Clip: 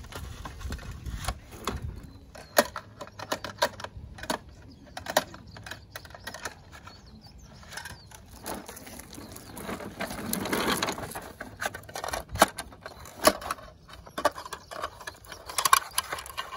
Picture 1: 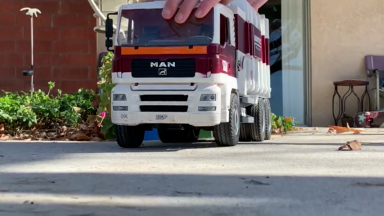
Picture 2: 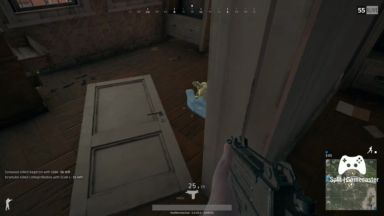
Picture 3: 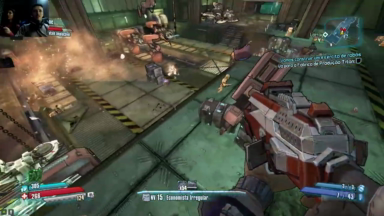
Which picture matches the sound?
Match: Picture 1